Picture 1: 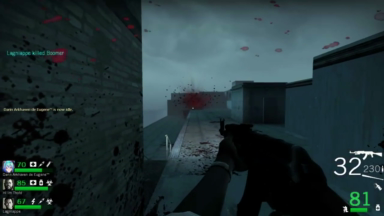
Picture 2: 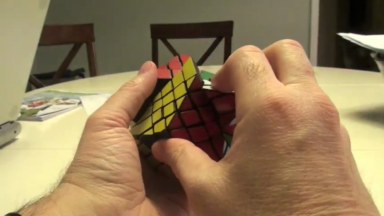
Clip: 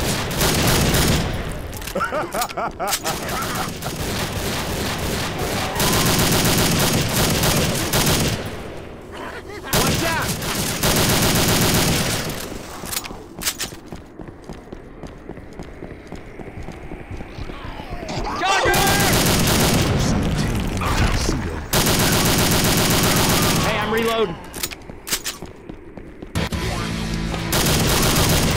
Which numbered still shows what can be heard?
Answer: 1